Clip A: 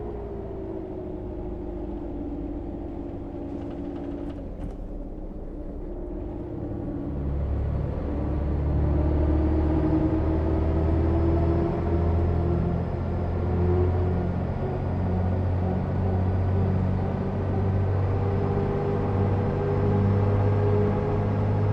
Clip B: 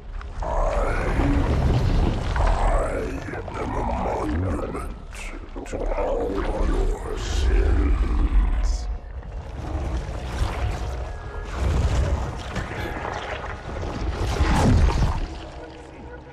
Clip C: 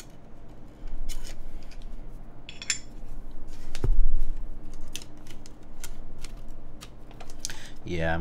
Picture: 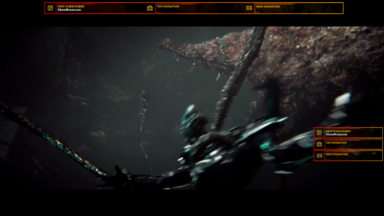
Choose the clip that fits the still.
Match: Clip B